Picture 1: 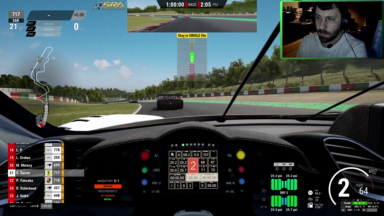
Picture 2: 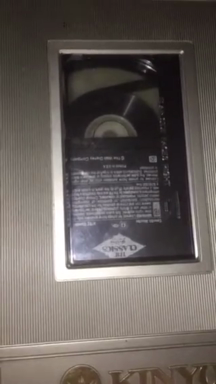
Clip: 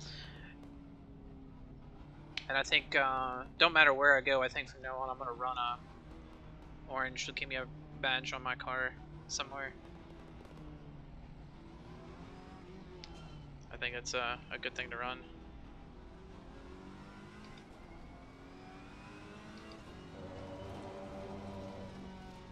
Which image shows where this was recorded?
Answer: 1